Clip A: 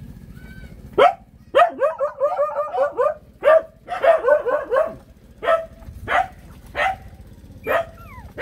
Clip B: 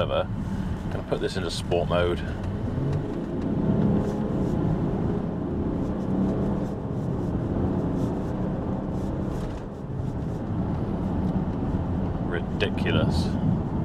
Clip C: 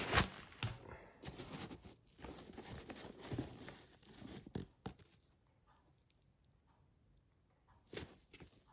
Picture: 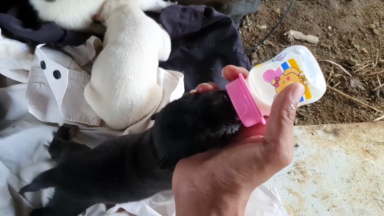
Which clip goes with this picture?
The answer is A